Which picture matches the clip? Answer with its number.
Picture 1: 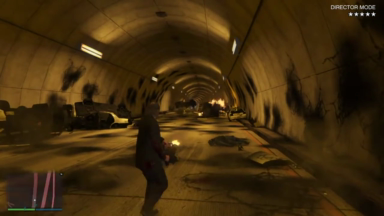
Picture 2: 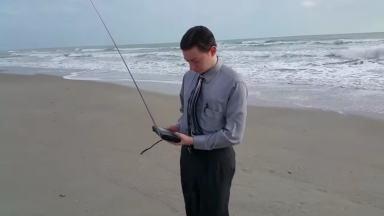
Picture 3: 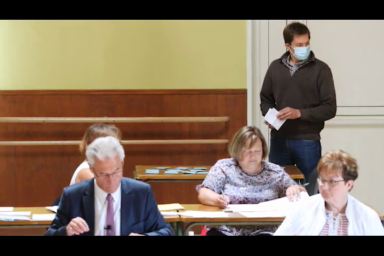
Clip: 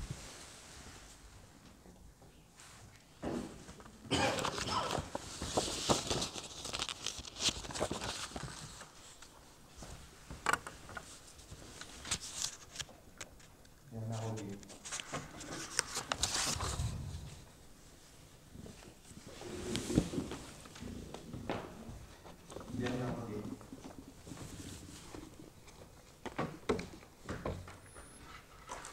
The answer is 3